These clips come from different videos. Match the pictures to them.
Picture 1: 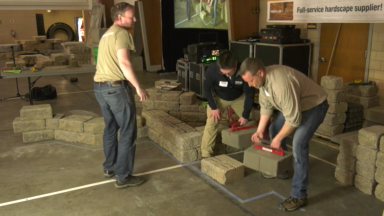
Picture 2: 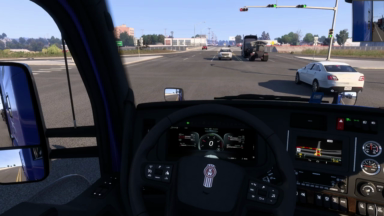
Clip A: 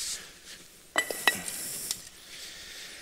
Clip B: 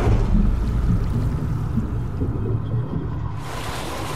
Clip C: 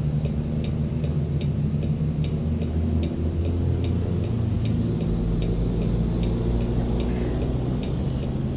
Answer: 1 A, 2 C